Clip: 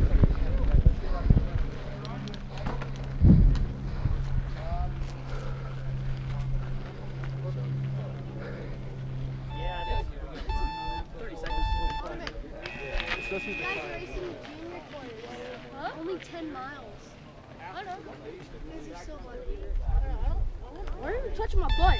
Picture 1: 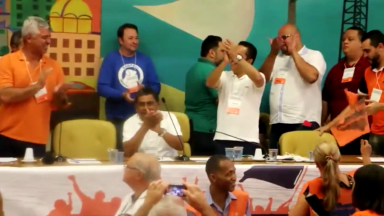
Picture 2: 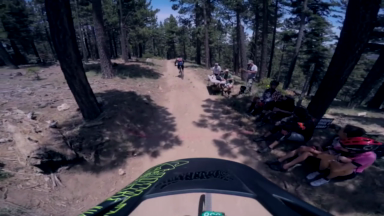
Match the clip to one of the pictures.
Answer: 2